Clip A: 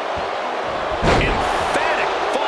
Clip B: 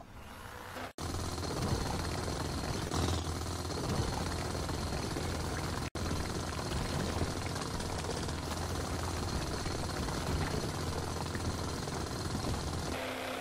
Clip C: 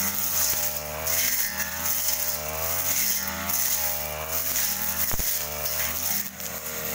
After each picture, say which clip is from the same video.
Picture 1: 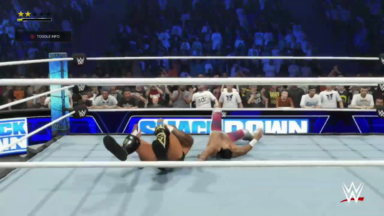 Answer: A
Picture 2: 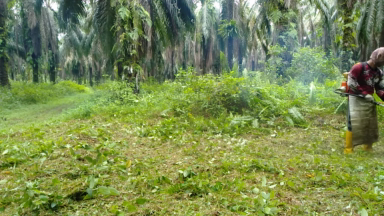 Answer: C